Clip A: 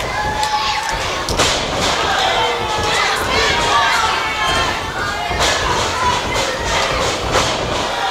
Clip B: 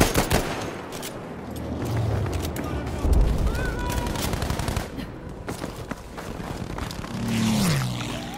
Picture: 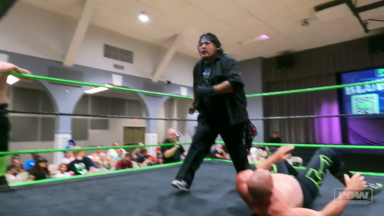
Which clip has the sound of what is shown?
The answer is A